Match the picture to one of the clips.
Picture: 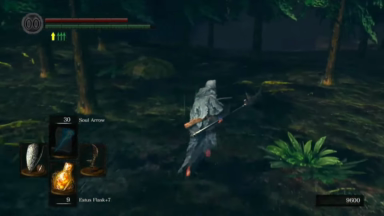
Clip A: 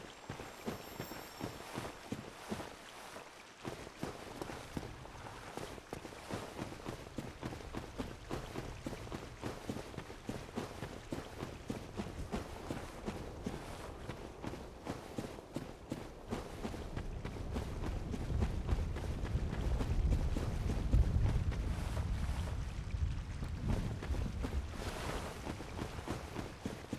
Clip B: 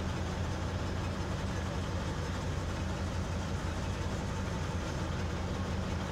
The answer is A